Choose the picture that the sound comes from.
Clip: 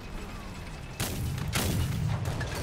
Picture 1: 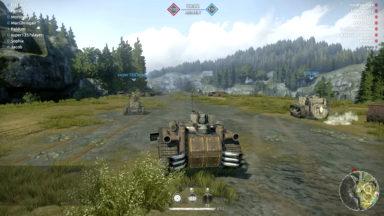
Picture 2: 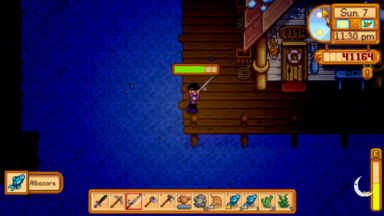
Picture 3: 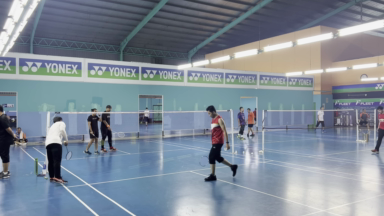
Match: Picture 1